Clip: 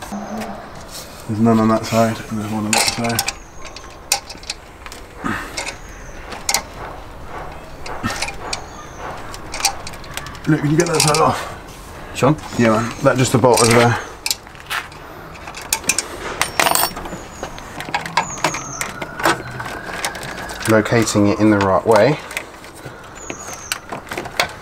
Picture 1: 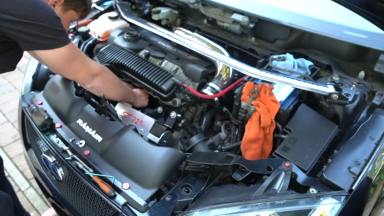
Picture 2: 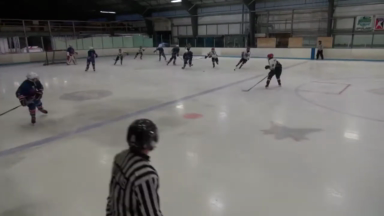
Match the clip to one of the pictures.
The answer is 1